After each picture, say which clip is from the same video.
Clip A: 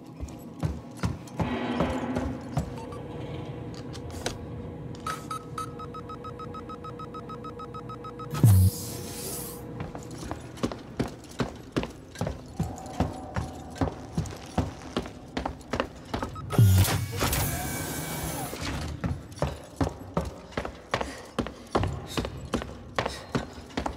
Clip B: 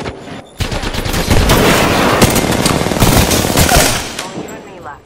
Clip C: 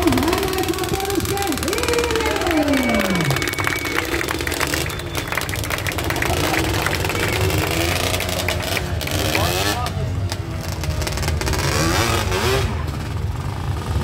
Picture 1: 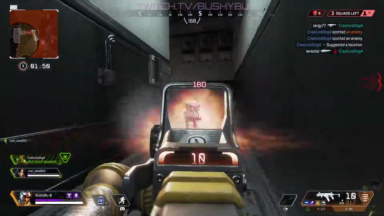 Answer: B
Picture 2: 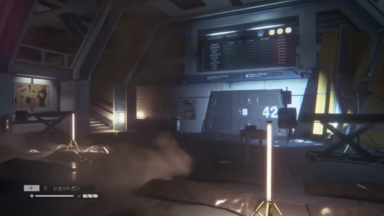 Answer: A